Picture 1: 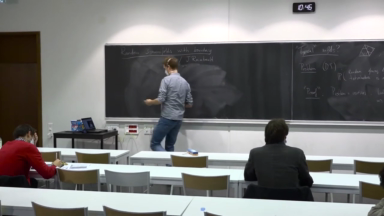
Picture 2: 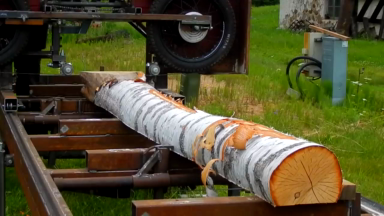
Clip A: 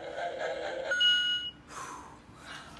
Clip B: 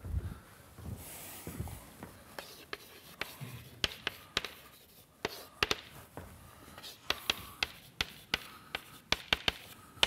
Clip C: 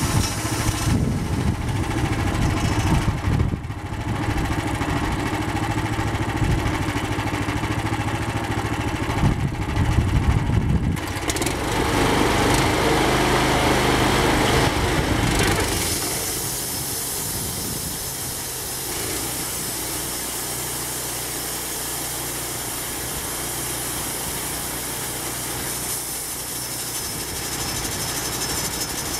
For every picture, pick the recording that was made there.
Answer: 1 B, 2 C